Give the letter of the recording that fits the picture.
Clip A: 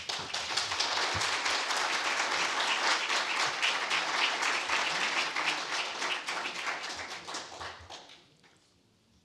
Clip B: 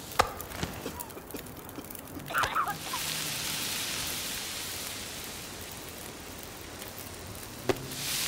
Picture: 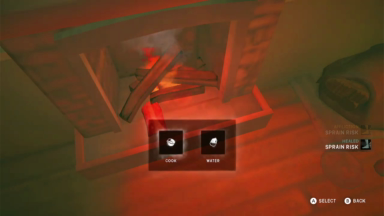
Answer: B